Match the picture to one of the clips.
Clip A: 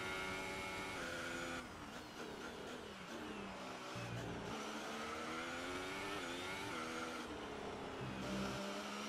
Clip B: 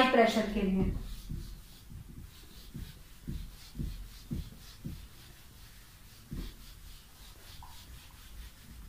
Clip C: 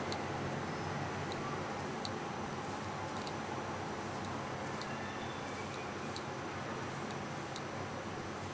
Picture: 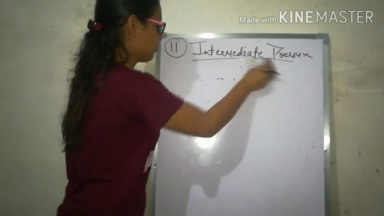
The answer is B